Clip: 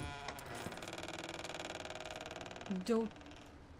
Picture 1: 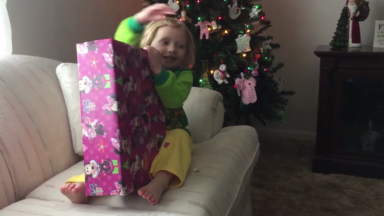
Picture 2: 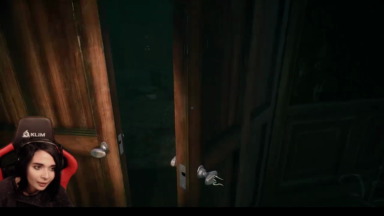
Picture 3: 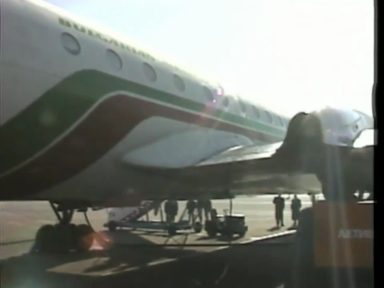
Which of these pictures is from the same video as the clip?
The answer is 2